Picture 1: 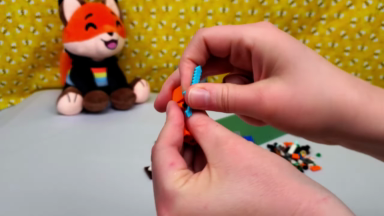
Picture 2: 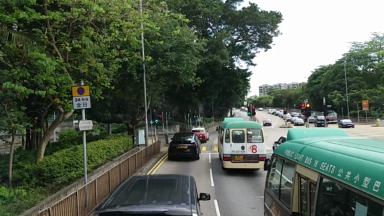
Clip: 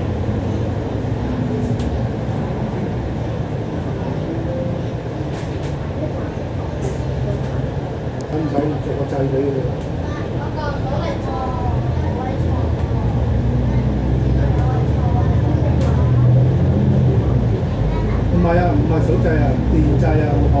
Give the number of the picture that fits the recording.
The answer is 2